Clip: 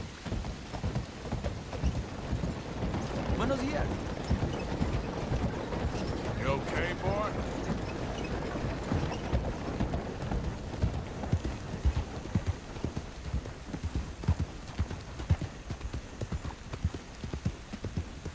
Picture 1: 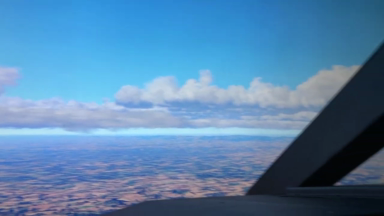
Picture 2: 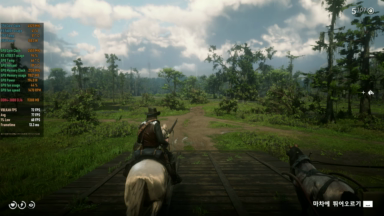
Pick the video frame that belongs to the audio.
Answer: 2